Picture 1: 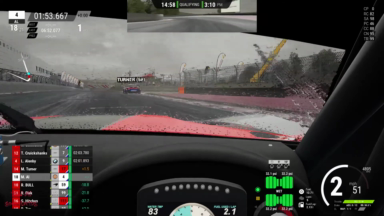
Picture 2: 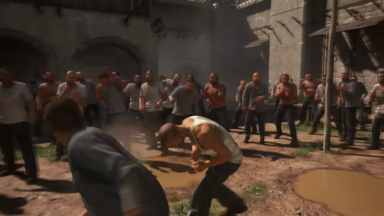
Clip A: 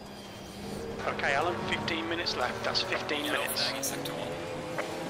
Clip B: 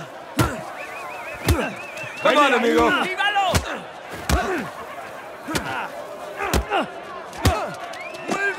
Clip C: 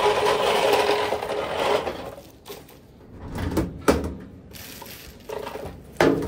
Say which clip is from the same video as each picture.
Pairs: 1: A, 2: B